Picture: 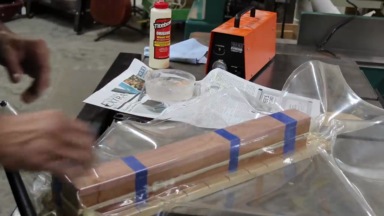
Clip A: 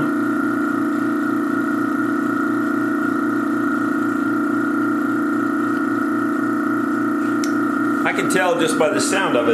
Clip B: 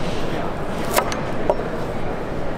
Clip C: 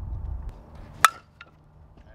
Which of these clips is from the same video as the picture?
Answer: A